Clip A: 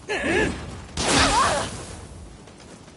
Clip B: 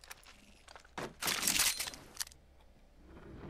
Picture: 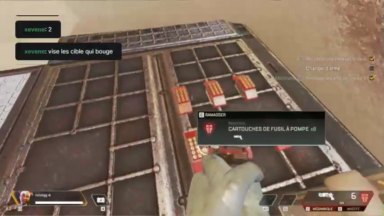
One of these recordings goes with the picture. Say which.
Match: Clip B